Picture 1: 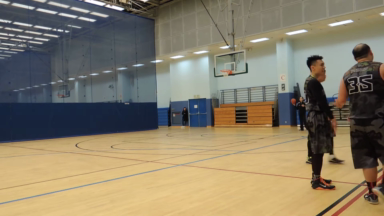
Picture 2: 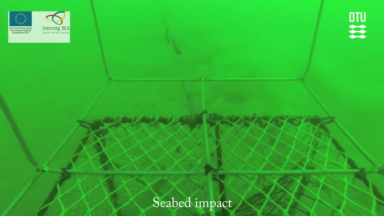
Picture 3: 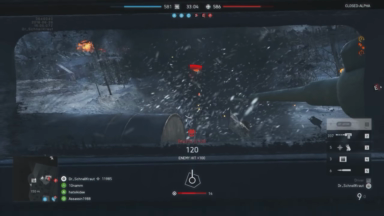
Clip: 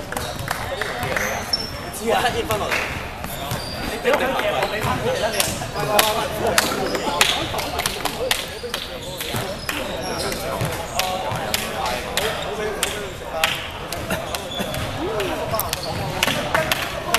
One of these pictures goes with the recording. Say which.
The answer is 1